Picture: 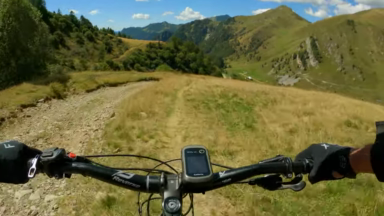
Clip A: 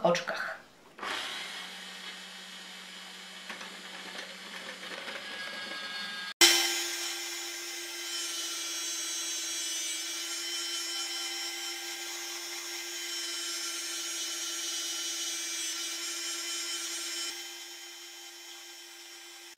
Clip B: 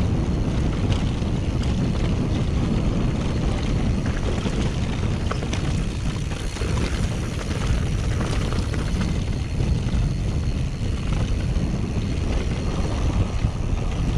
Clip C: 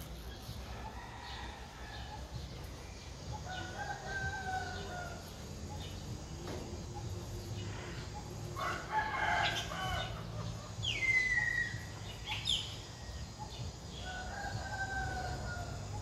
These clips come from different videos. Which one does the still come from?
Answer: B